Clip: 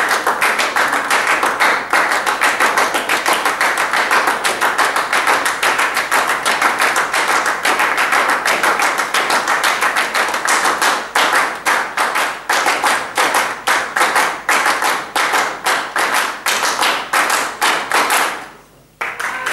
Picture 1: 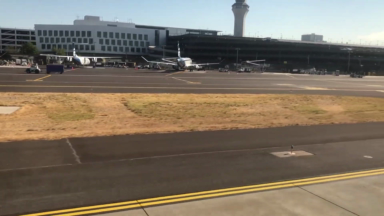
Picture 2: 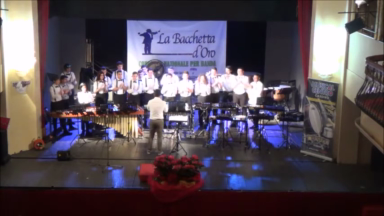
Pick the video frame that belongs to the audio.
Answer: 2